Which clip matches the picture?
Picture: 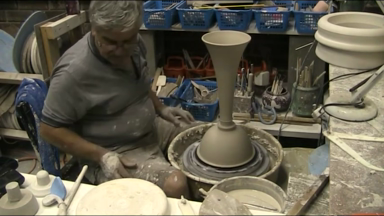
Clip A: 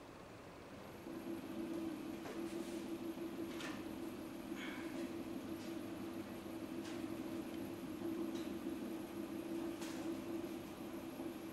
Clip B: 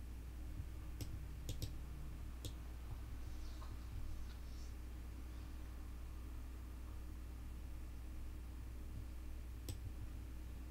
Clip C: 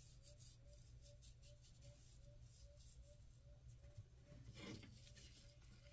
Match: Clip A